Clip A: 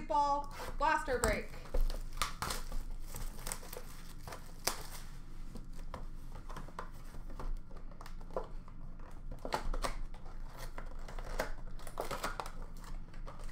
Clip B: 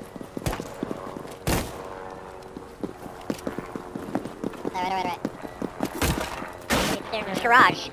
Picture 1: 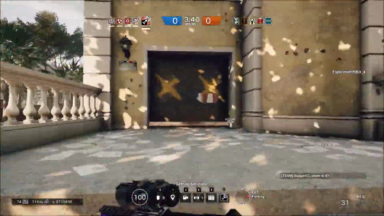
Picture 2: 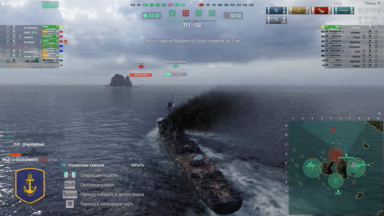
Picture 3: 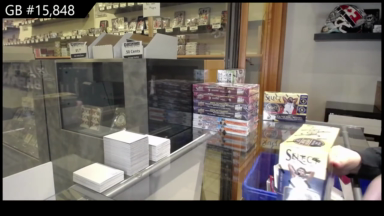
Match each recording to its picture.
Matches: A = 3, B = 1